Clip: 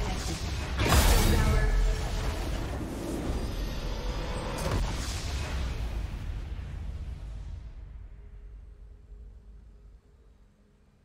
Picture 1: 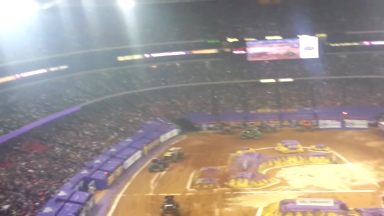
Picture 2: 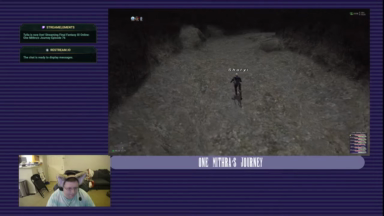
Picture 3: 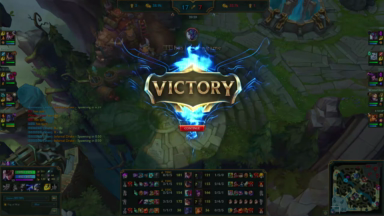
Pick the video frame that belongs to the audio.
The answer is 3